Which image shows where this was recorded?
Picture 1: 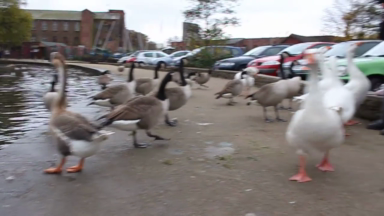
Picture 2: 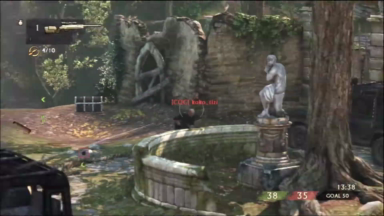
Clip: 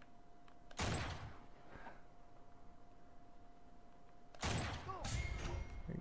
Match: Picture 2